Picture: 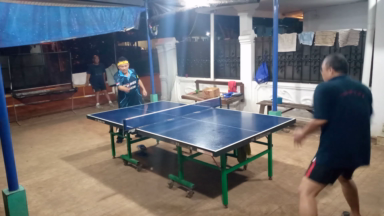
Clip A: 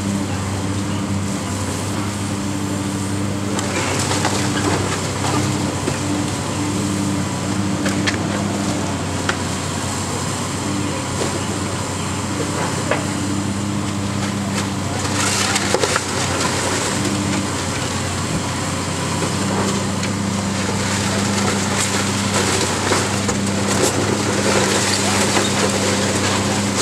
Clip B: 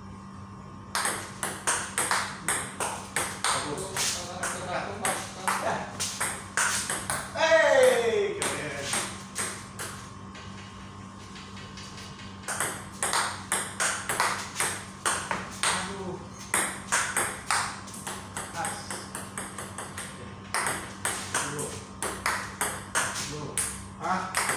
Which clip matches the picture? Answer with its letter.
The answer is B